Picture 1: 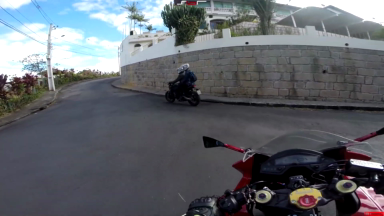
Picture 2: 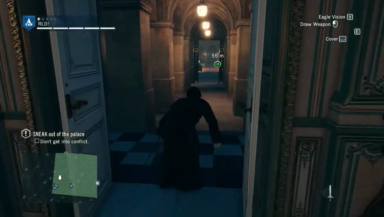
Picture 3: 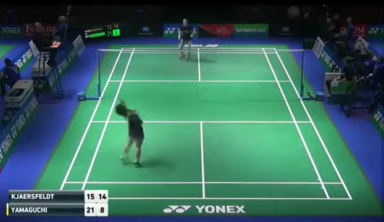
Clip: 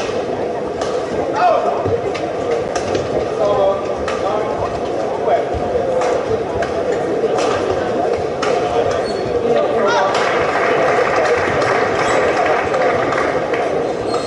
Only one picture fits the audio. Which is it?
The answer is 3